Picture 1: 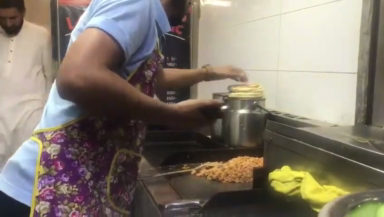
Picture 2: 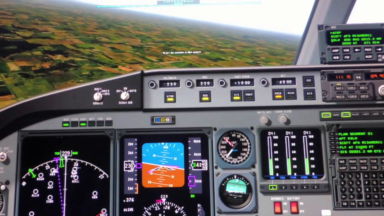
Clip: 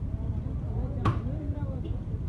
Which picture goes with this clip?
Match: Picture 1